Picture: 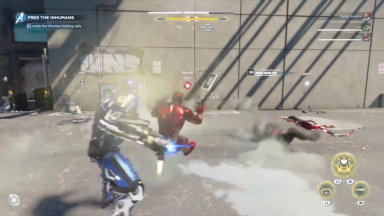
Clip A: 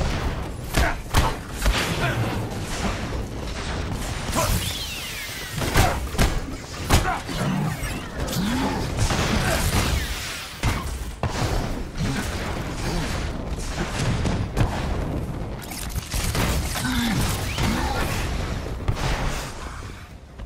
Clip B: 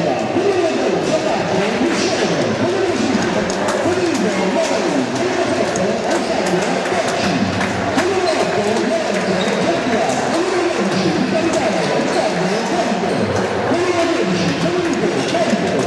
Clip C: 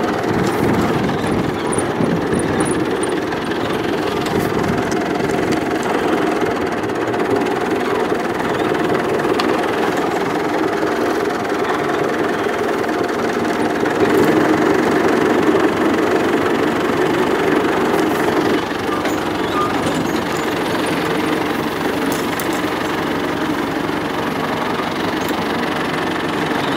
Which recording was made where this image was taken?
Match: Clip A